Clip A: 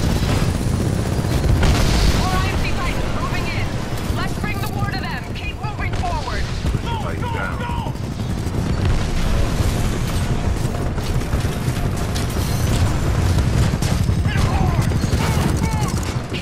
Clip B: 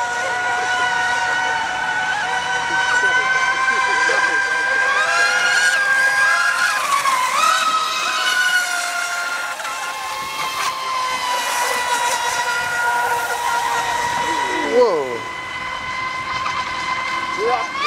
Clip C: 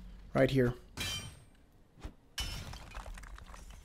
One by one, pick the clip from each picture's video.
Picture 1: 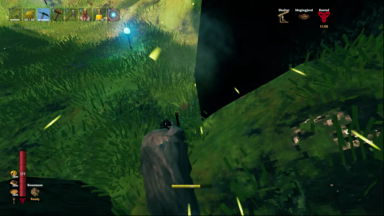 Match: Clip C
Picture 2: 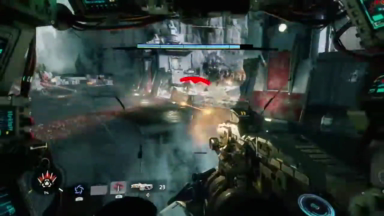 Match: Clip A